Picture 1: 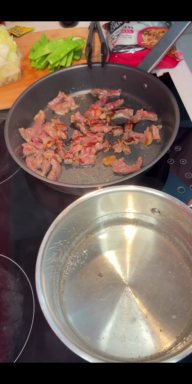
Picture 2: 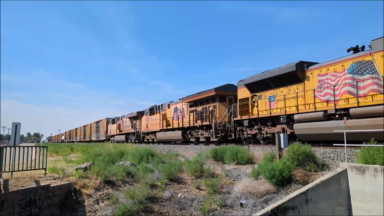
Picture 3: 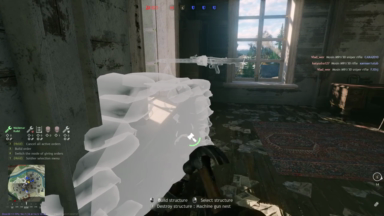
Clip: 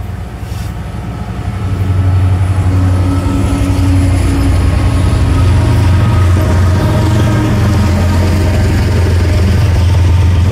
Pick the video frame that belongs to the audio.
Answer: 2